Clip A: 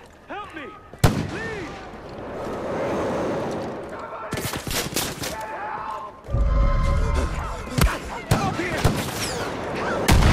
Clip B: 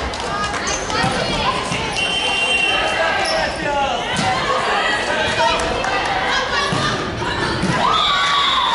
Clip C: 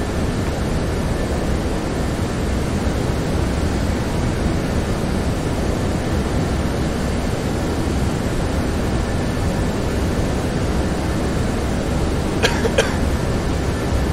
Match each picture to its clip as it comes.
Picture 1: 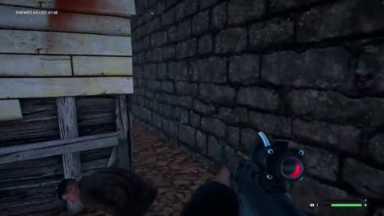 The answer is A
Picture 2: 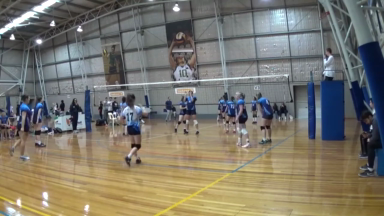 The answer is B